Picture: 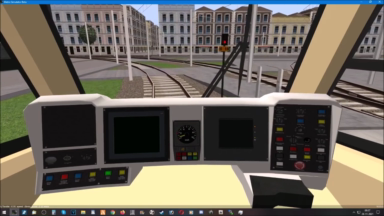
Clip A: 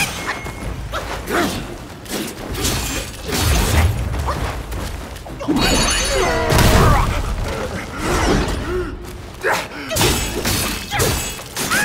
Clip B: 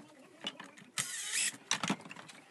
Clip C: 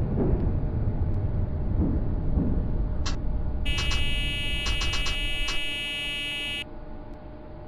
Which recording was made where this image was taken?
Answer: C